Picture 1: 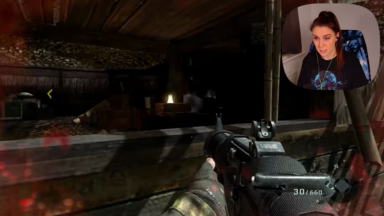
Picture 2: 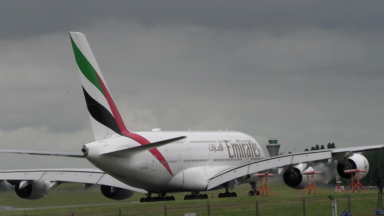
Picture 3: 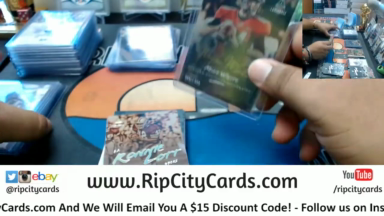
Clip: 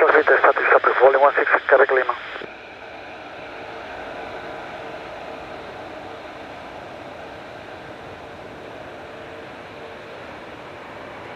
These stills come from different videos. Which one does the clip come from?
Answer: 2